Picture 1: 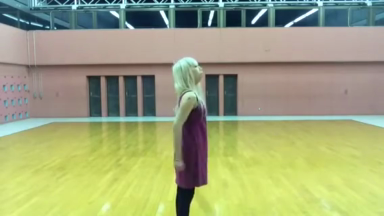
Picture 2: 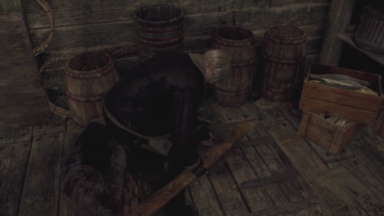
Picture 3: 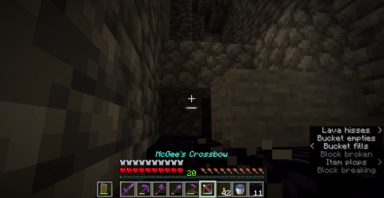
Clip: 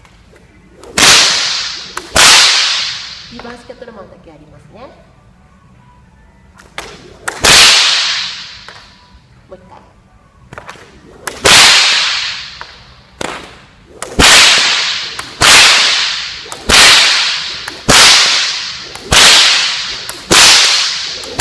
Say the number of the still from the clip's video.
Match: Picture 1